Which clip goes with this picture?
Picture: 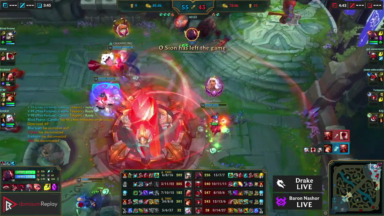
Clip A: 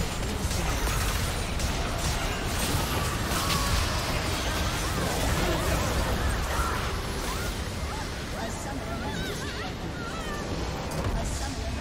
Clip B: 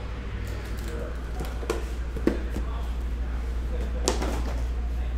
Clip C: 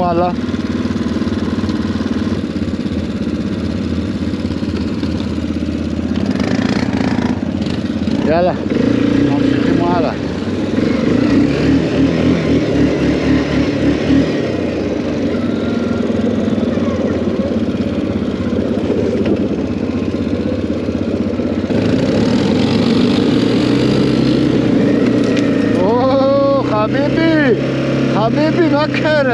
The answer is A